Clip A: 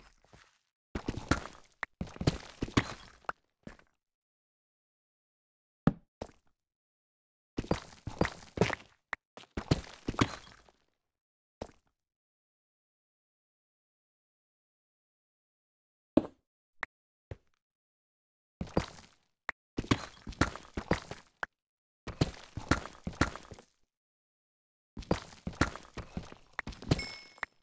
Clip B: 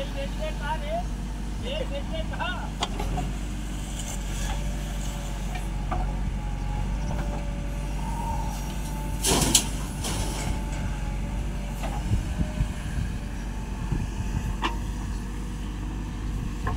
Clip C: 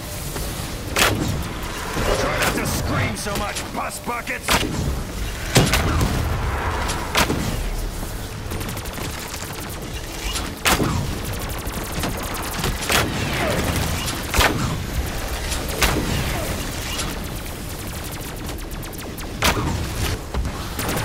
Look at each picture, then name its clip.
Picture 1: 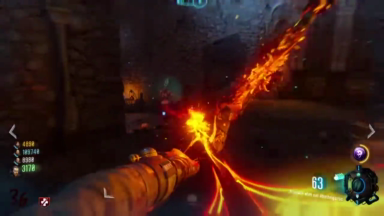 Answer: C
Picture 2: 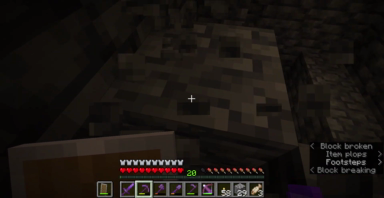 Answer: A